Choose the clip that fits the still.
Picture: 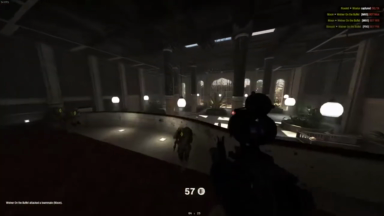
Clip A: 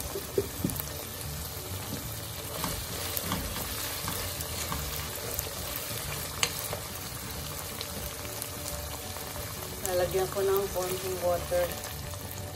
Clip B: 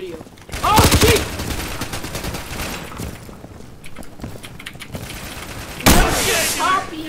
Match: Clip B